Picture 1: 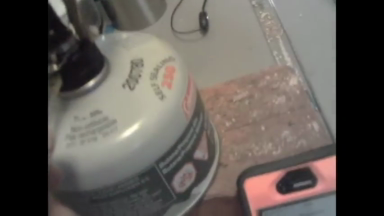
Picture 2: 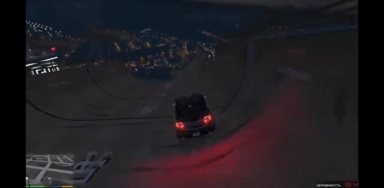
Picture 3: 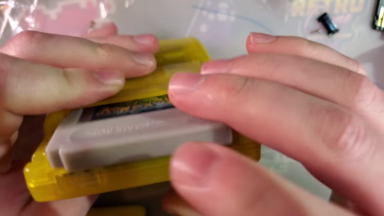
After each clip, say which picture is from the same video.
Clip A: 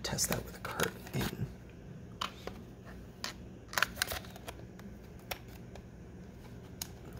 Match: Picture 3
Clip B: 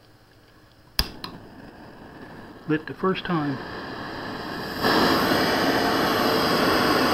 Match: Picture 1